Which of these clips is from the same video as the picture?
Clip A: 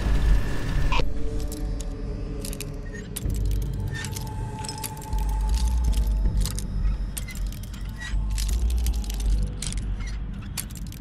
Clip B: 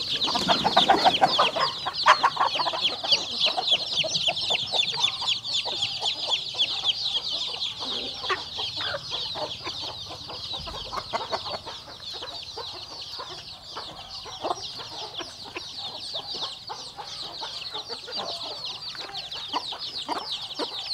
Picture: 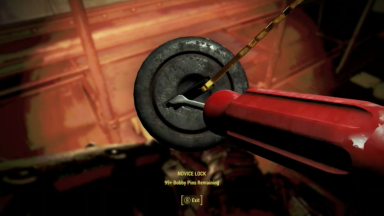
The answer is A